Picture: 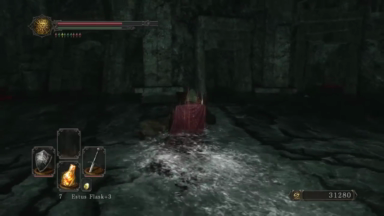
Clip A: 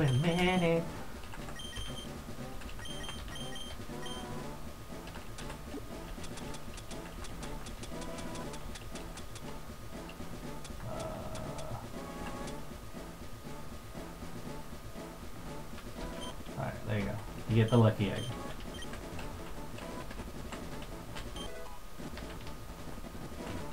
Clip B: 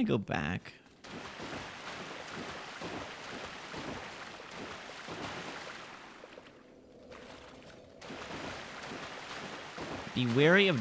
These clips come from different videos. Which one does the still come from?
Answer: B